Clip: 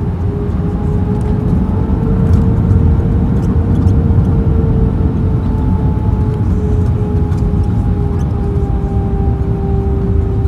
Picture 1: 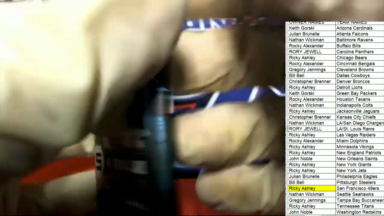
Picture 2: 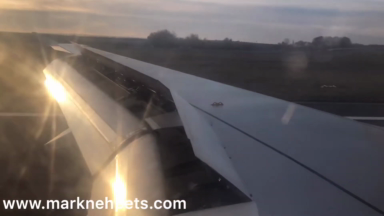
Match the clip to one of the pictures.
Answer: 2